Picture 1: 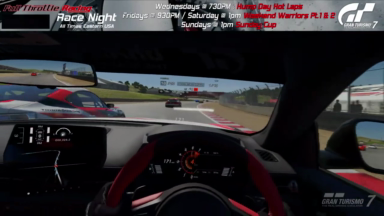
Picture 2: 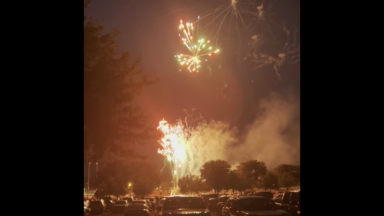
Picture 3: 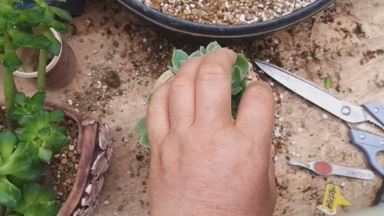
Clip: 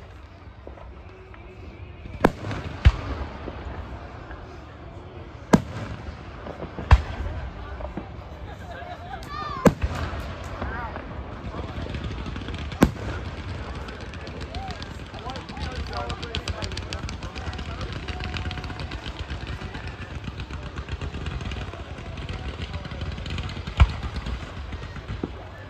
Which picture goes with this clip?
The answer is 2